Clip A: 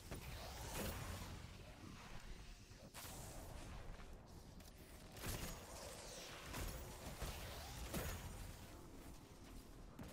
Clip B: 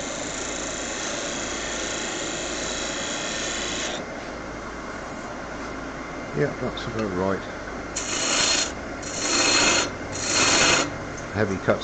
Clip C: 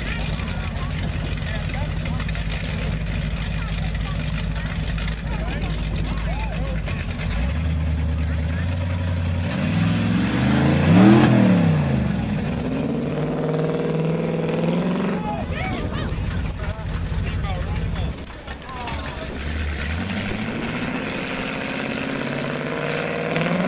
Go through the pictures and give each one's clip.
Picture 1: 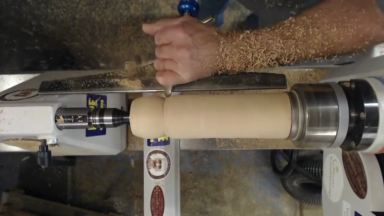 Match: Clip B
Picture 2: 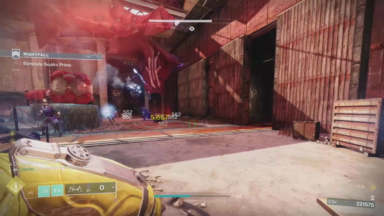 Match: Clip A